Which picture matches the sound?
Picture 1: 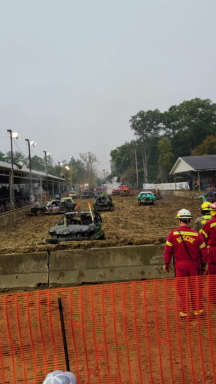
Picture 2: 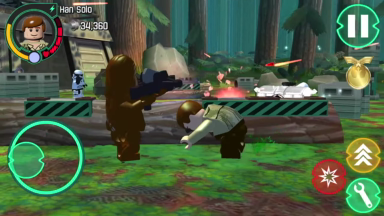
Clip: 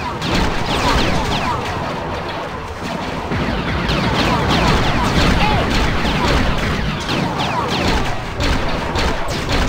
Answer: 2